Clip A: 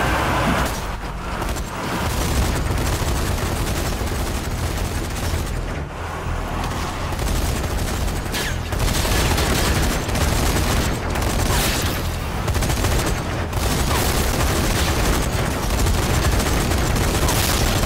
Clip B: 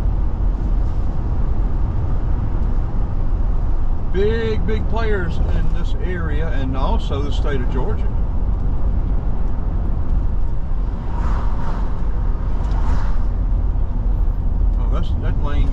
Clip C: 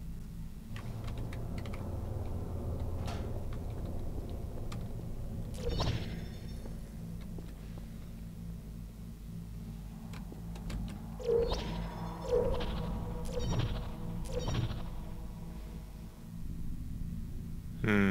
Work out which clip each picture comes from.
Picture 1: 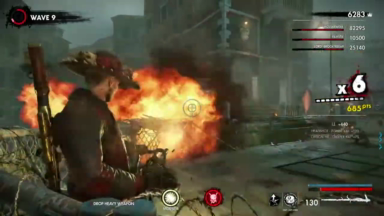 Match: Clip A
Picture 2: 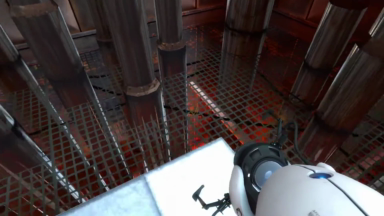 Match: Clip C